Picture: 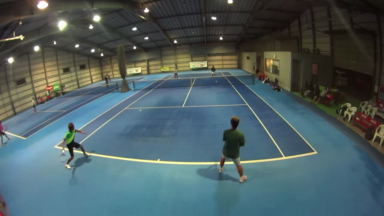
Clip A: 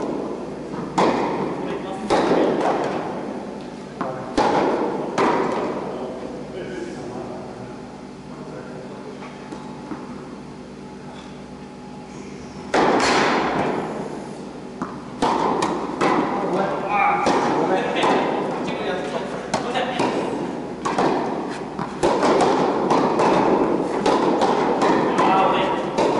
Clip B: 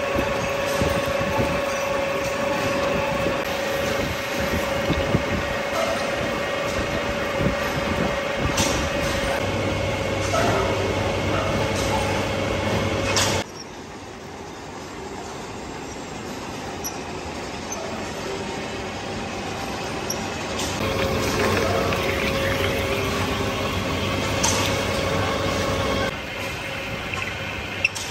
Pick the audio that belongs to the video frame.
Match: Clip A